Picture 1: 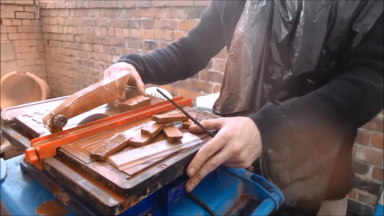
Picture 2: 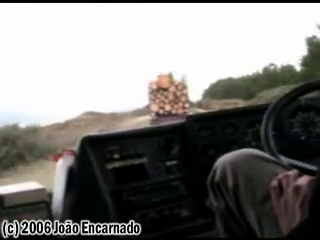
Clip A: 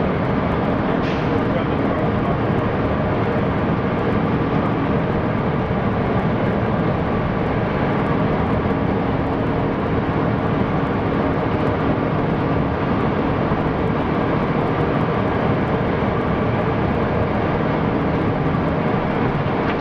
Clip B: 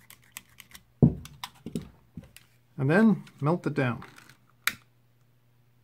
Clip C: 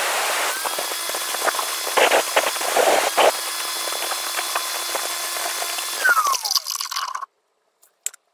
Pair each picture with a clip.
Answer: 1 C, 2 A